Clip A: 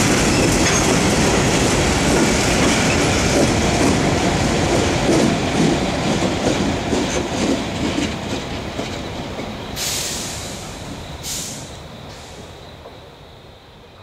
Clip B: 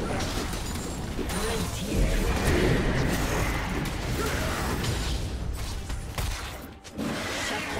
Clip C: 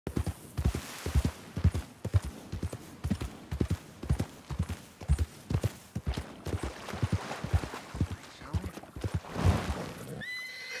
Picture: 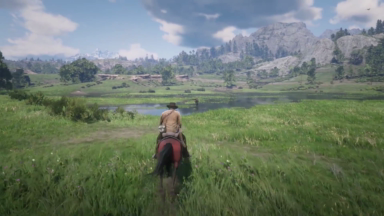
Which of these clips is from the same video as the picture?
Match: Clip C